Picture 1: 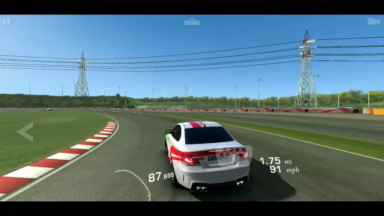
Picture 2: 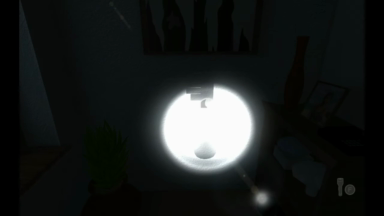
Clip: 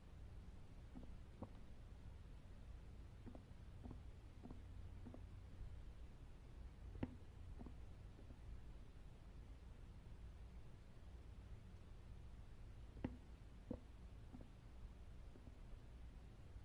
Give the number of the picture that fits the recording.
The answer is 2